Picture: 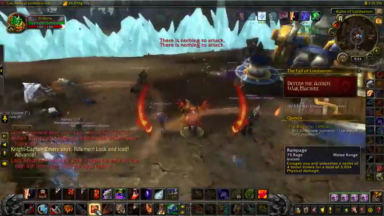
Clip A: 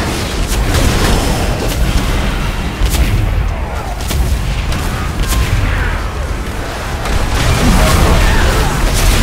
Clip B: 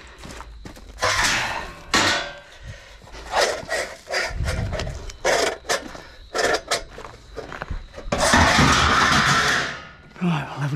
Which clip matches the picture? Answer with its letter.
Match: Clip A